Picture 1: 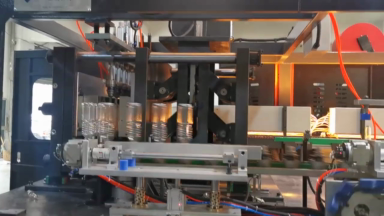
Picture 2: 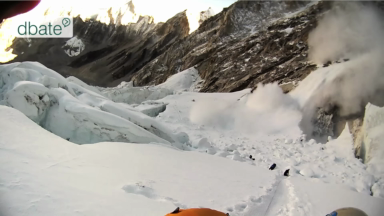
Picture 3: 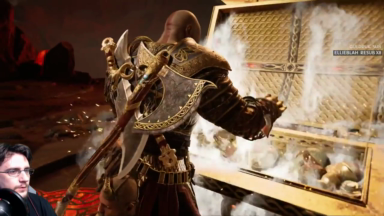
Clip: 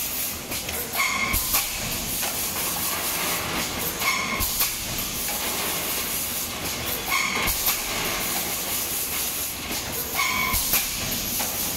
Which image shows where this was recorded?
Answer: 1